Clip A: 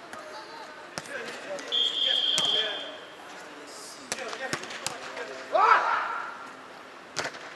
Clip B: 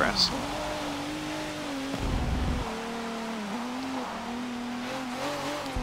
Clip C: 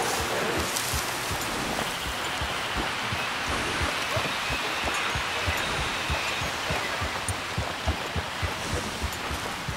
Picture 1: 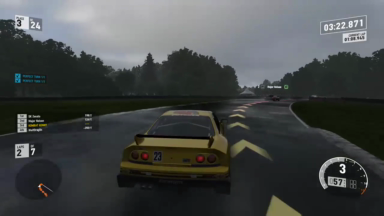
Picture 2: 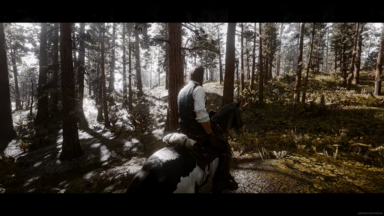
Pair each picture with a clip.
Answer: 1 B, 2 C